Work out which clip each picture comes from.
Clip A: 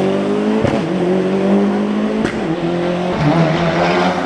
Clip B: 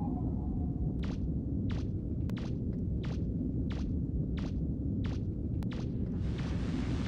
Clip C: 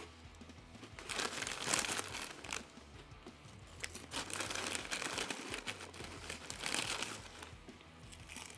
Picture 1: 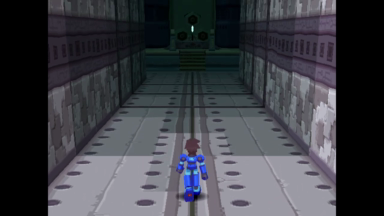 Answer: B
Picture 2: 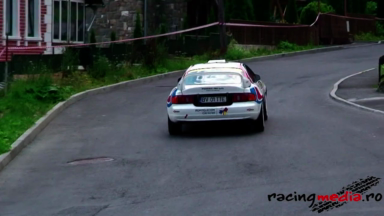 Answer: A